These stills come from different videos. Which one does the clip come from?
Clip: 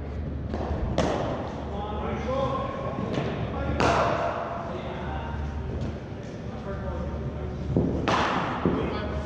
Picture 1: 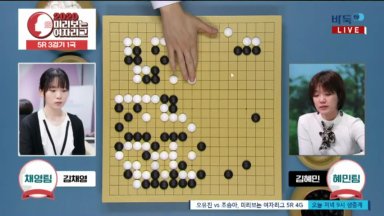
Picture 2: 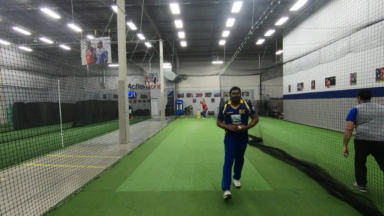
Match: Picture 2